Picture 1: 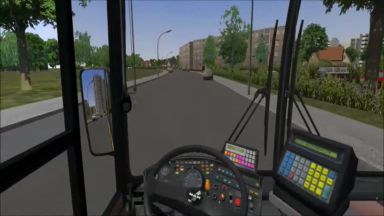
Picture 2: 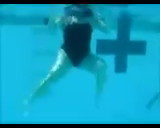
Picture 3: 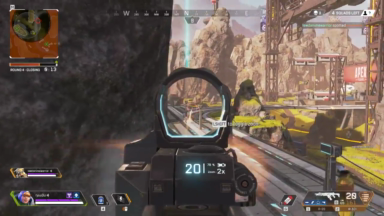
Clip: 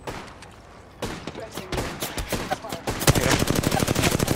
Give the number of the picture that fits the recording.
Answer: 3